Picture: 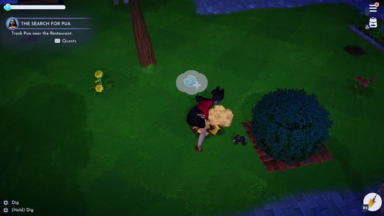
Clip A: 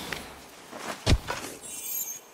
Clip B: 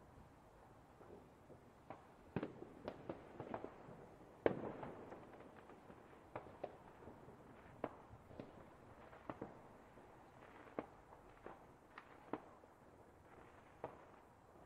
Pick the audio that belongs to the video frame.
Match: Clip A